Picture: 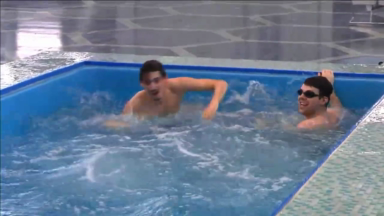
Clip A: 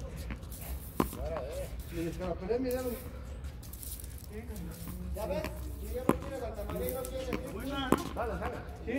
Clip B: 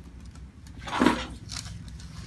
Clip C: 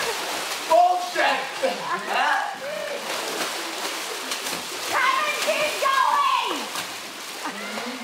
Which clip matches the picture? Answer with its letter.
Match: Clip C